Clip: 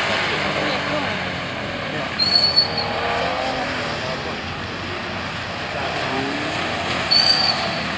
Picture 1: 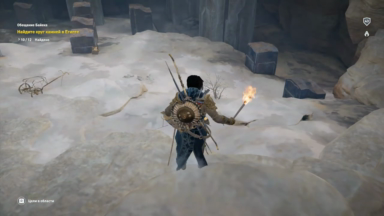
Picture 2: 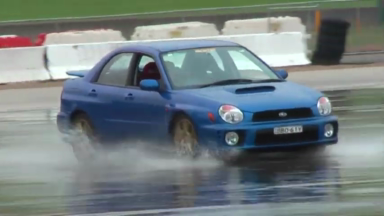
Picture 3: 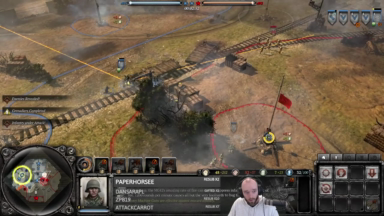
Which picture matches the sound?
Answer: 2